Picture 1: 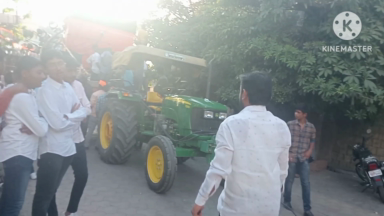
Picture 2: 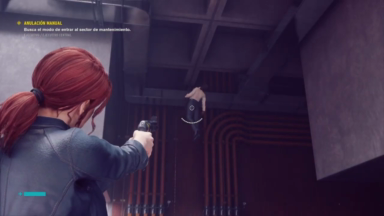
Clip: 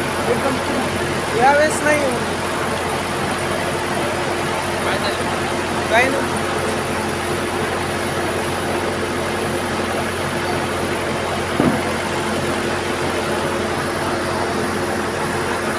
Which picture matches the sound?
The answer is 1